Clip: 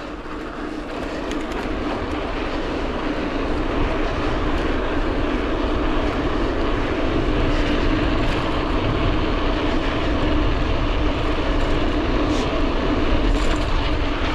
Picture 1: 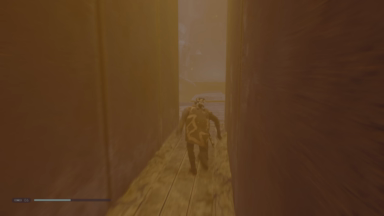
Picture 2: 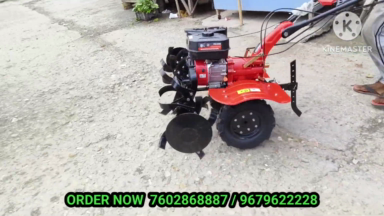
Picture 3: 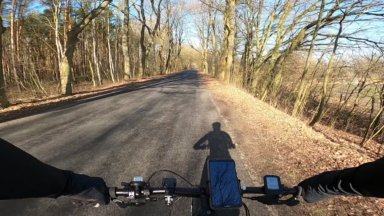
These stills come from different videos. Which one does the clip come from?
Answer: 3